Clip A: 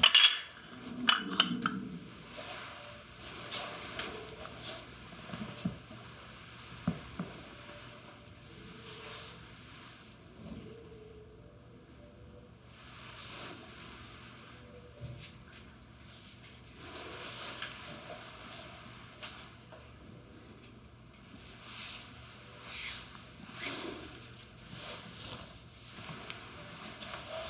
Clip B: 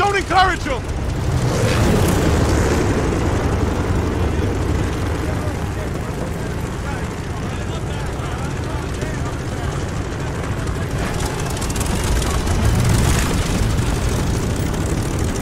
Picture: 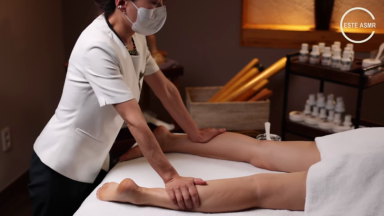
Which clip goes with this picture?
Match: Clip A